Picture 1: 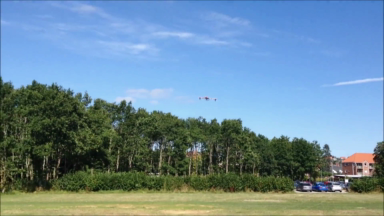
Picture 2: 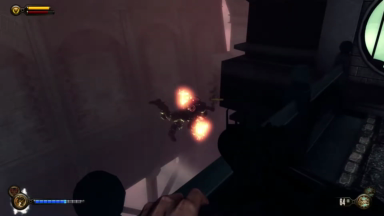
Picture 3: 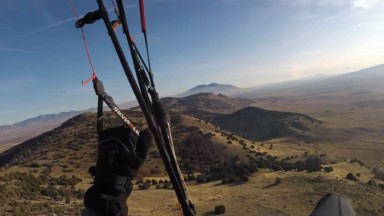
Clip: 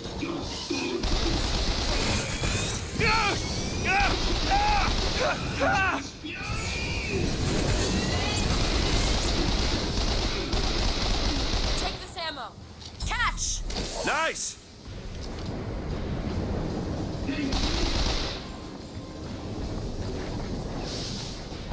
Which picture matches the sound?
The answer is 2